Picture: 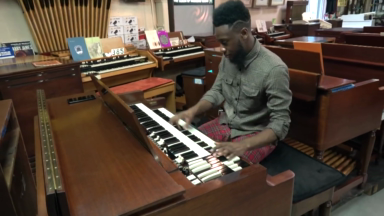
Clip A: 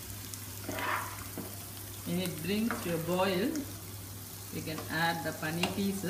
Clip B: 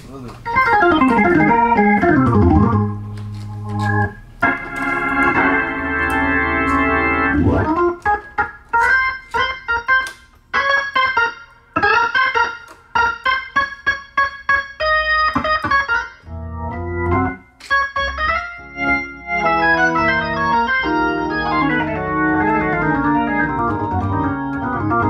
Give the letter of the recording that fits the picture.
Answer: B